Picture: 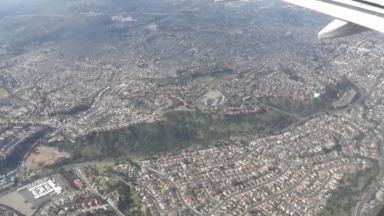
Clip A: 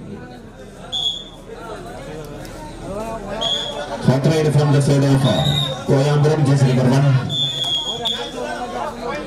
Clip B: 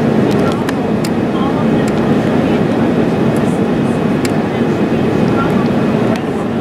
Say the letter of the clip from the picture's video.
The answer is B